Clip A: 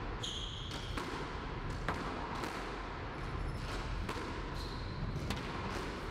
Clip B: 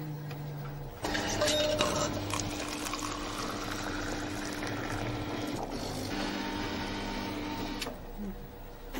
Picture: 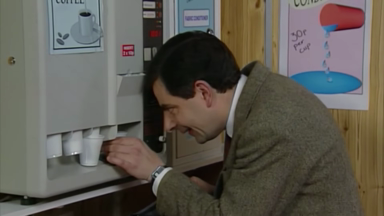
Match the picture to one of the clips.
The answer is B